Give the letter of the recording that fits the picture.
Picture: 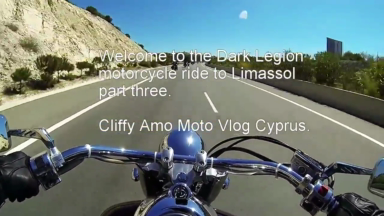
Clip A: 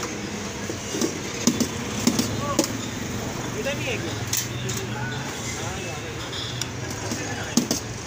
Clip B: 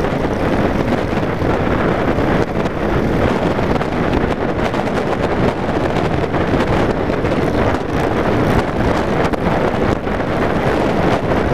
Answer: B